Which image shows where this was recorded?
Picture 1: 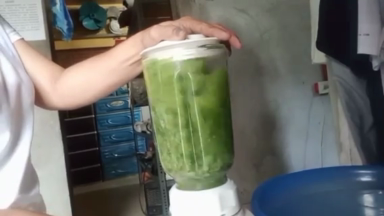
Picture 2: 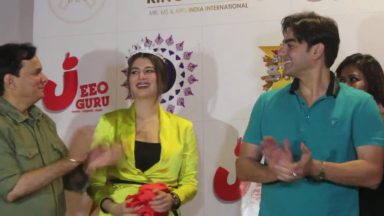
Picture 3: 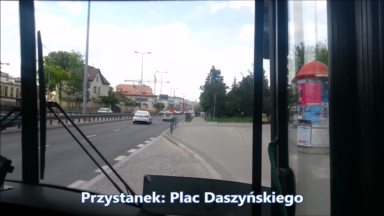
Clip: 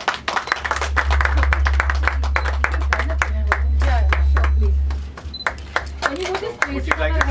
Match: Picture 2